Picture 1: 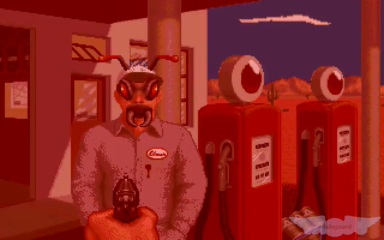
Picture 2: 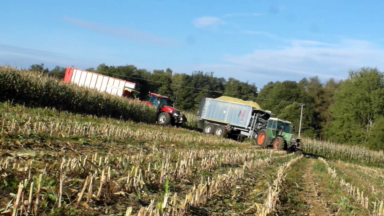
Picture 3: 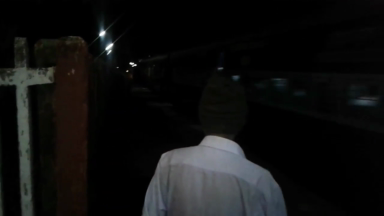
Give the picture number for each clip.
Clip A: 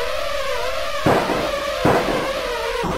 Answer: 1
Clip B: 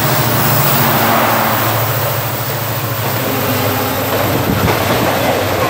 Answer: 3